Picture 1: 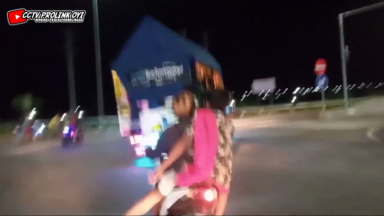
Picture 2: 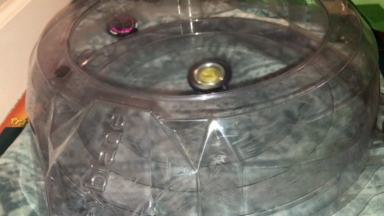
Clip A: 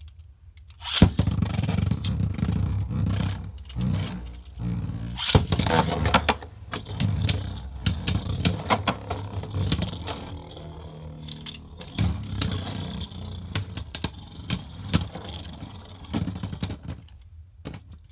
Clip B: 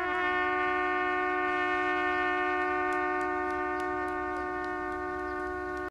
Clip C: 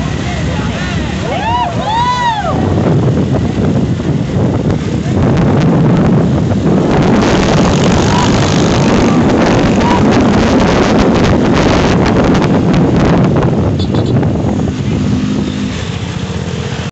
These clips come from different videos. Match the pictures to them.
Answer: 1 C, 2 A